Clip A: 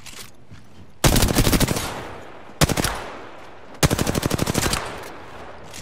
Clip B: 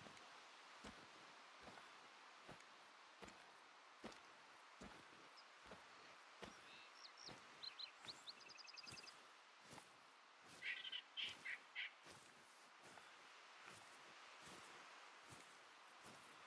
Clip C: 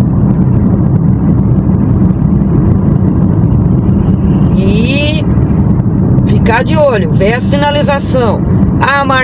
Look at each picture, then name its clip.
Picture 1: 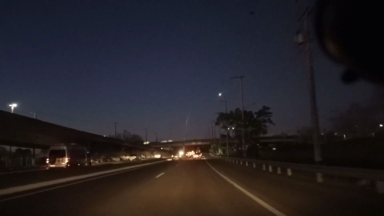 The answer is C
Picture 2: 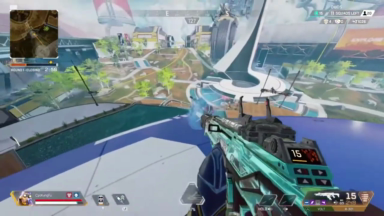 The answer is A